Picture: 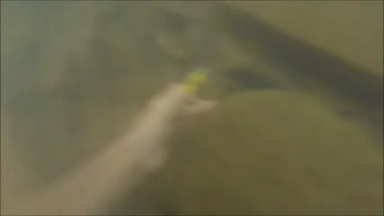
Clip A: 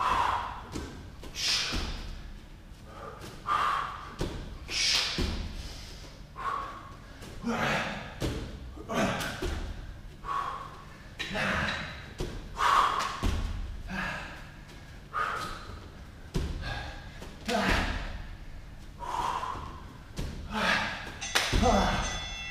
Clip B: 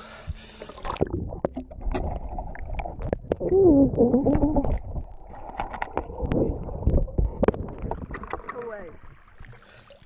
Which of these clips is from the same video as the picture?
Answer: B